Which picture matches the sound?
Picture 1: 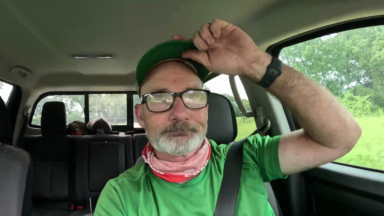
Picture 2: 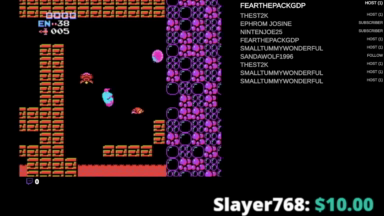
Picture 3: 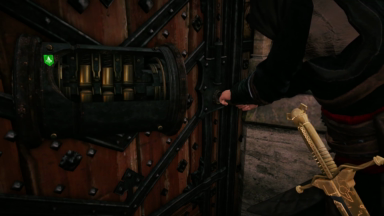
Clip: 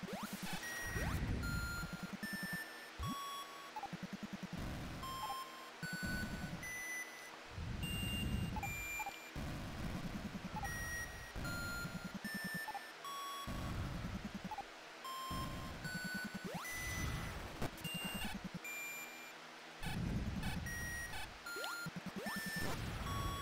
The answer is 2